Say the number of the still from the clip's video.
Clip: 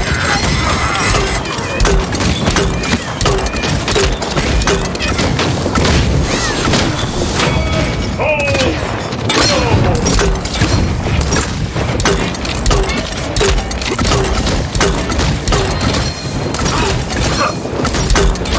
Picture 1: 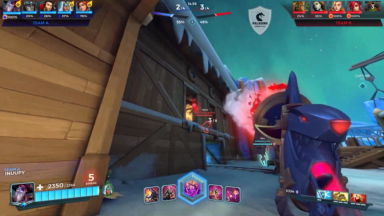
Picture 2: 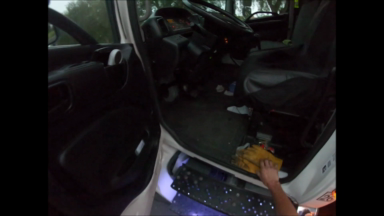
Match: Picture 1